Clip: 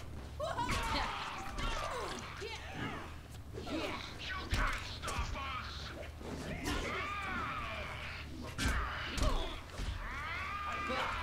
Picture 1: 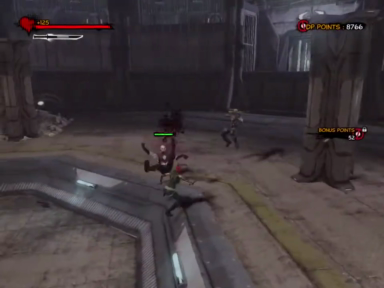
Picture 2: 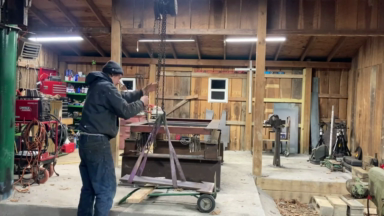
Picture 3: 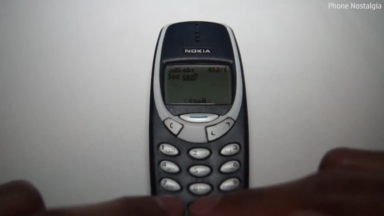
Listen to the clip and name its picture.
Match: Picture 1